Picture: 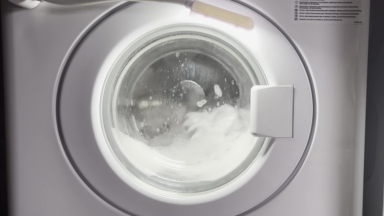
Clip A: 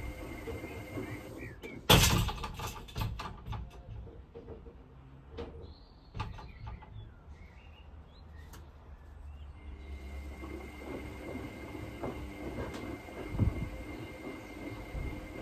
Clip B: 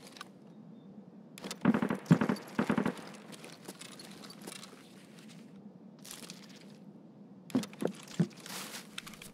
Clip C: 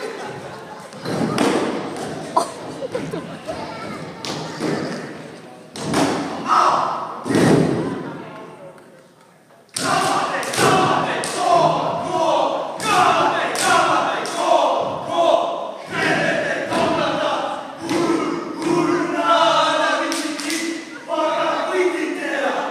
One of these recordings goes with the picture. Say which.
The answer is A